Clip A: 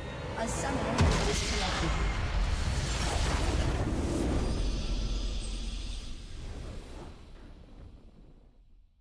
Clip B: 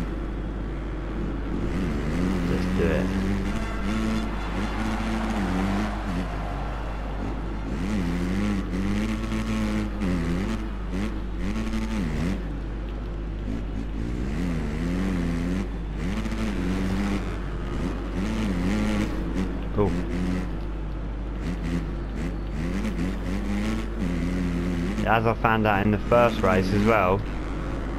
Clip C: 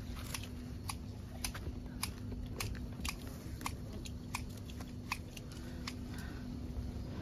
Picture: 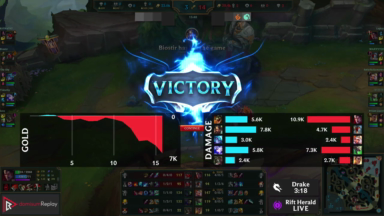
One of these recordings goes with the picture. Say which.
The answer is A